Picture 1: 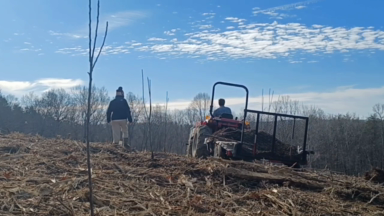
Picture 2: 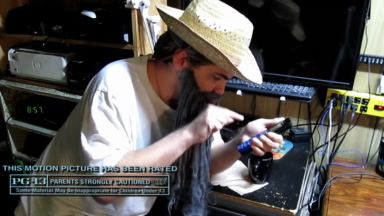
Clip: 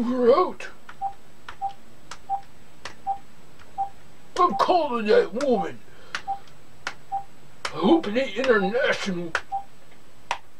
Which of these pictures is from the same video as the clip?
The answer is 2